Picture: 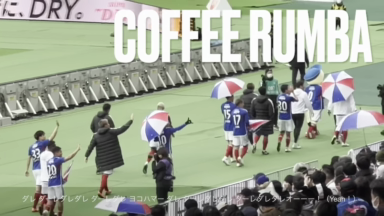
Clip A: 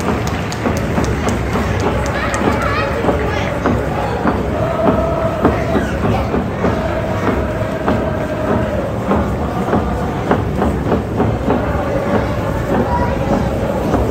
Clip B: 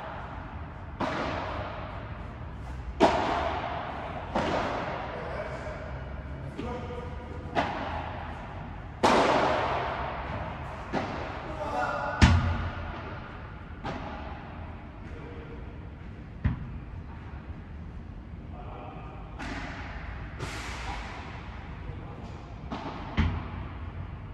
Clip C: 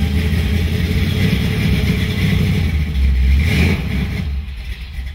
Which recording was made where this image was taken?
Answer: A